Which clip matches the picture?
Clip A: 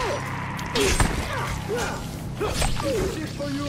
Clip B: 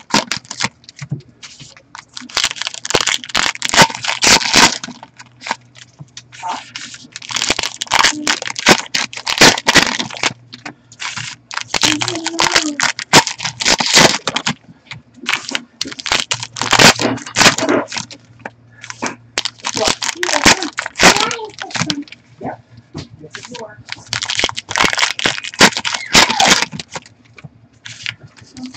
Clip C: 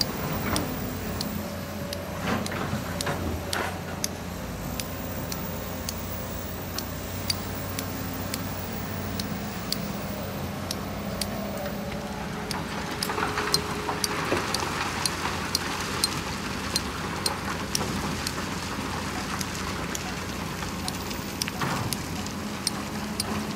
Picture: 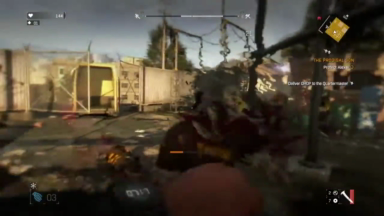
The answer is A